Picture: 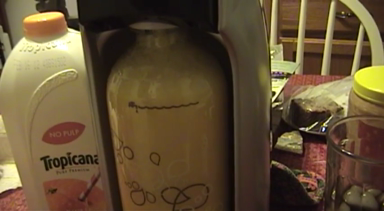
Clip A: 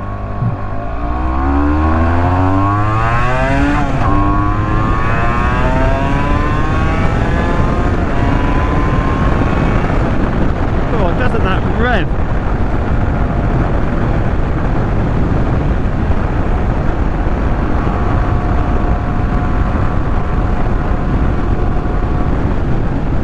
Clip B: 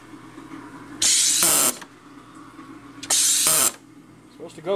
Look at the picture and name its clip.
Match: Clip B